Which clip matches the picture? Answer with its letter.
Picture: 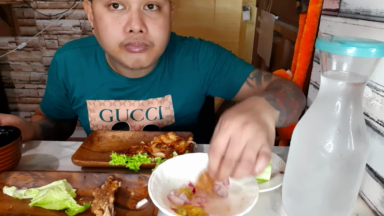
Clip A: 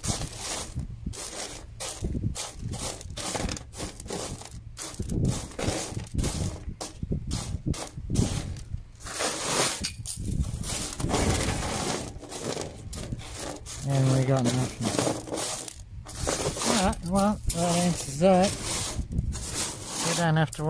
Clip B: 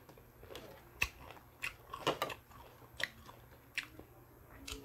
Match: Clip B